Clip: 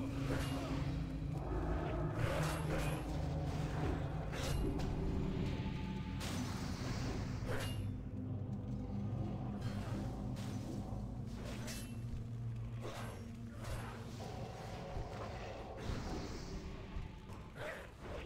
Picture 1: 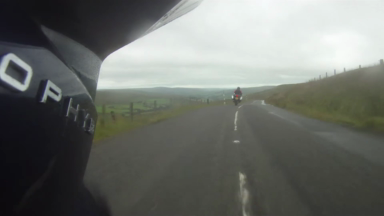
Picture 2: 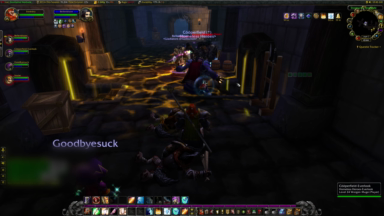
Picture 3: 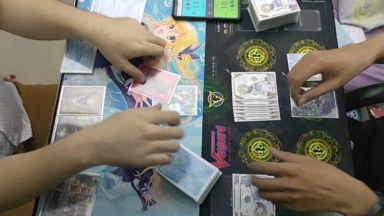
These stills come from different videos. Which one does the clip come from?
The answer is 2